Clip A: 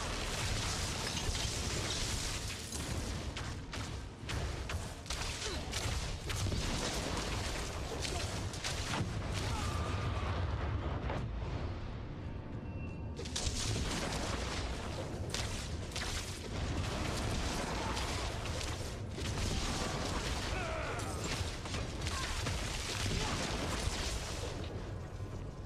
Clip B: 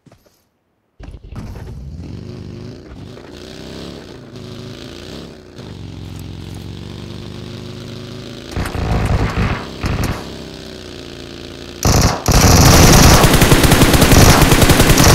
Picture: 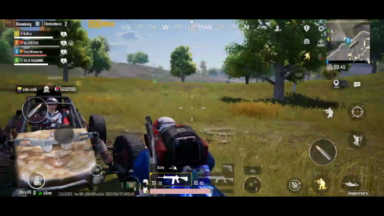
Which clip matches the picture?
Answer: B